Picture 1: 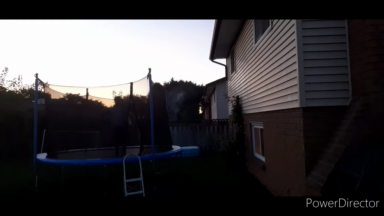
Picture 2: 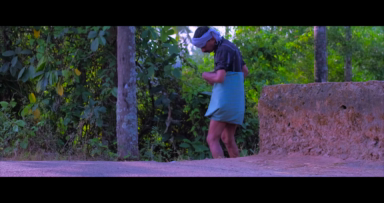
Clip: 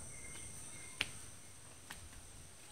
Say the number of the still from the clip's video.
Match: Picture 2